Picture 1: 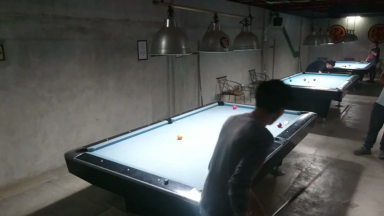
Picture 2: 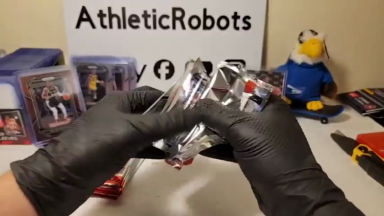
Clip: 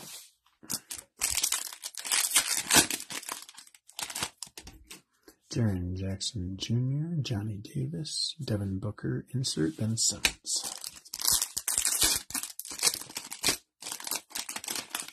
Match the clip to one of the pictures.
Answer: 2